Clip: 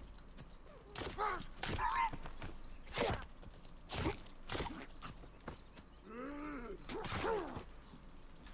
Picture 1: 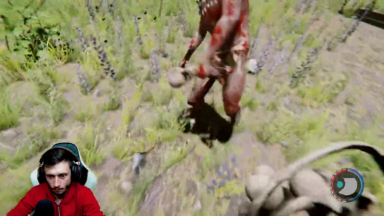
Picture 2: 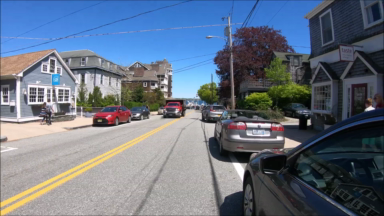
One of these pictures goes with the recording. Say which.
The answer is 1